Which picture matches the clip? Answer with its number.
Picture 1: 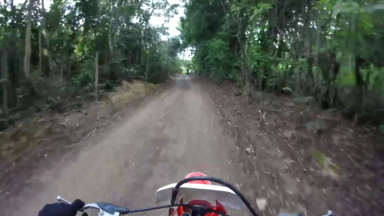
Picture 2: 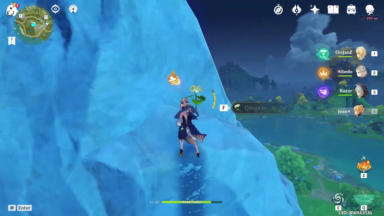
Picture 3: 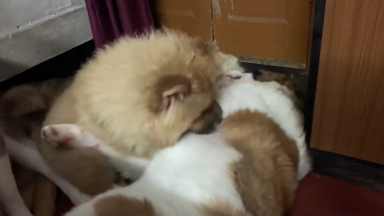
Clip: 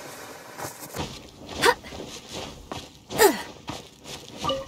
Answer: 2